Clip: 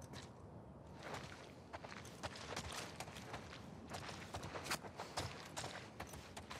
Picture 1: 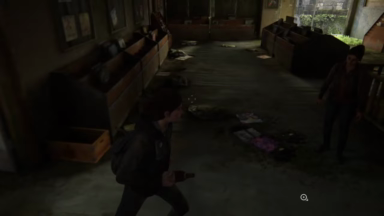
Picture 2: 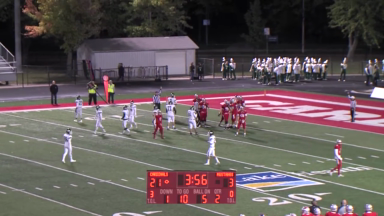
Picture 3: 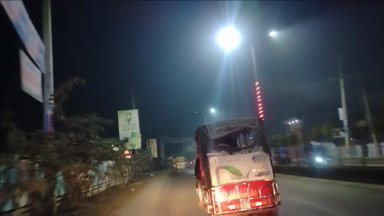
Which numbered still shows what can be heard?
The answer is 1